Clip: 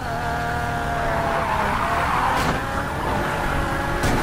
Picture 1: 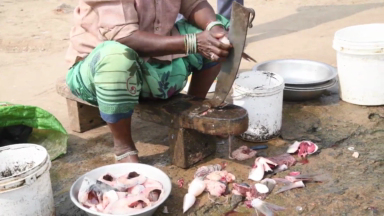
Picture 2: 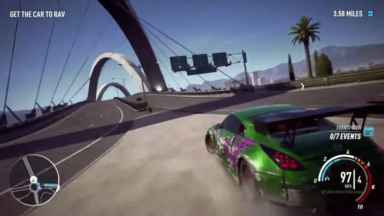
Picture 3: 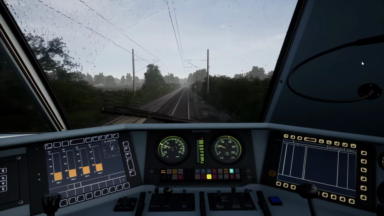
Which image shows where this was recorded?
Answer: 2